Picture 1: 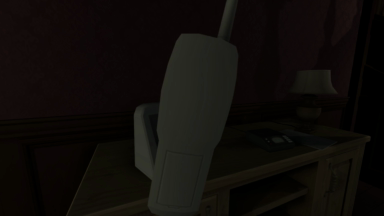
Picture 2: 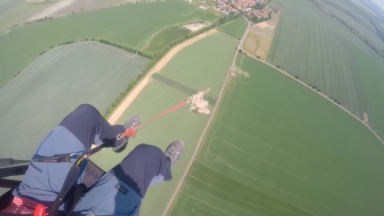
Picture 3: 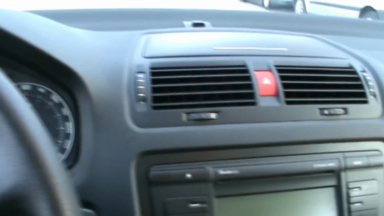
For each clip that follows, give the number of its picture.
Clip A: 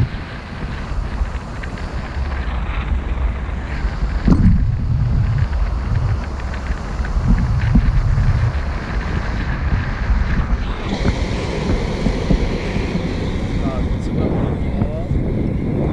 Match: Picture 2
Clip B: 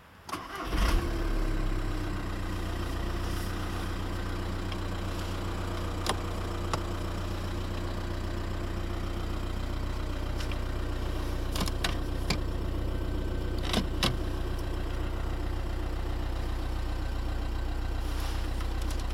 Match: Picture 3